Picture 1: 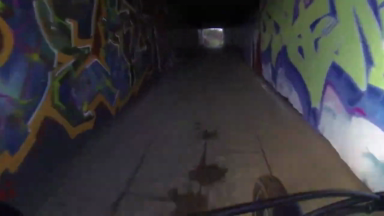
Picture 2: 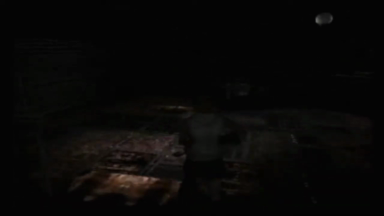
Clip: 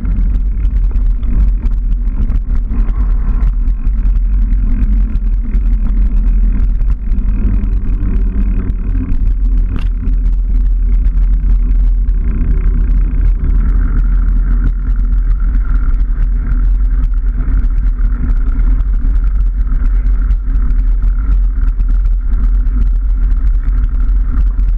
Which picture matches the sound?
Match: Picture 1